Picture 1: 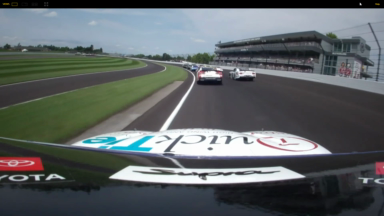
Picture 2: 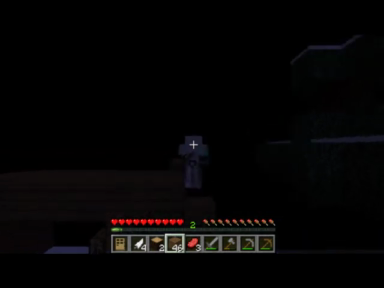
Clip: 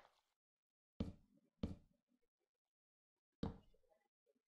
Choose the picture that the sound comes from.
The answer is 2